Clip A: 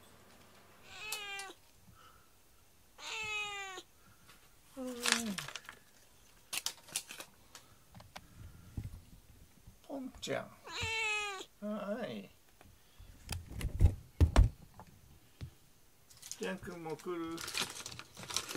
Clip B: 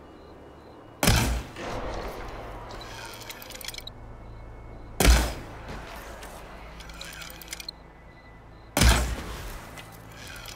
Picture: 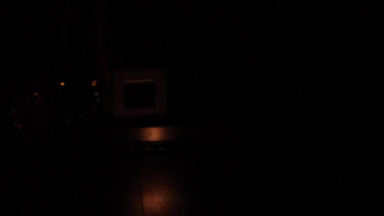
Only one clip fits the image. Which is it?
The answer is A